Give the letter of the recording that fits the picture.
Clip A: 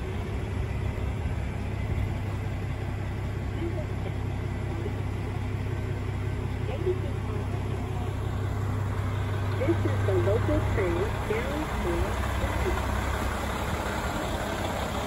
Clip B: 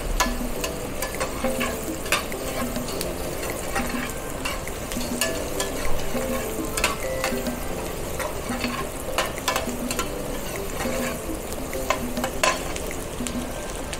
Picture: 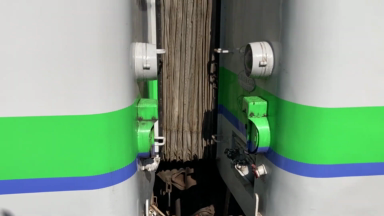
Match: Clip A